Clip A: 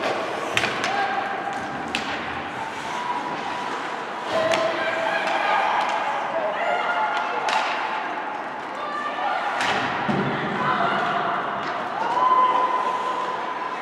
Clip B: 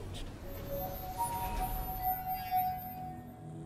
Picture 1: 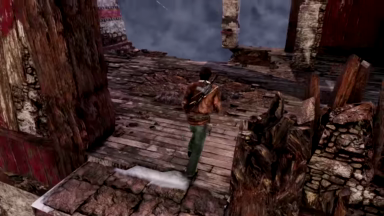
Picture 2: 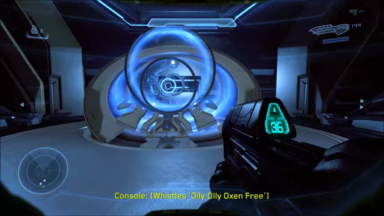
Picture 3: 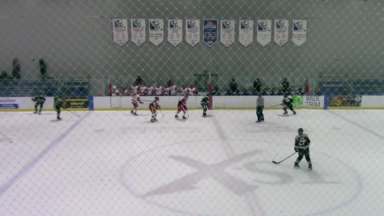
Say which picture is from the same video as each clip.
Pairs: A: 3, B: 2